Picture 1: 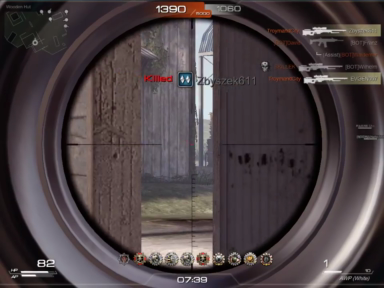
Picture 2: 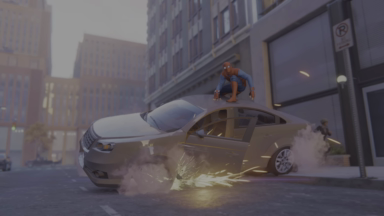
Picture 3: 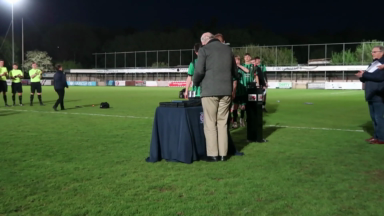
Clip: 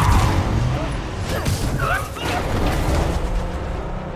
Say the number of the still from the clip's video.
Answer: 2